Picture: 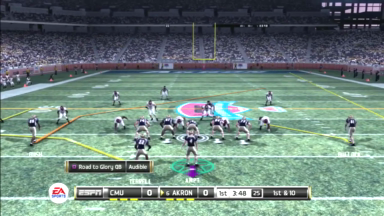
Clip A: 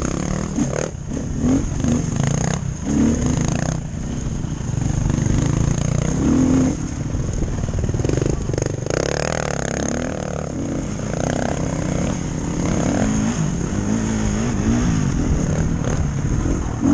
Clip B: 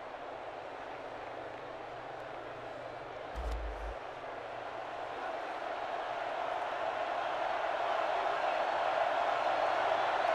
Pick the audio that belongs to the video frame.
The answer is B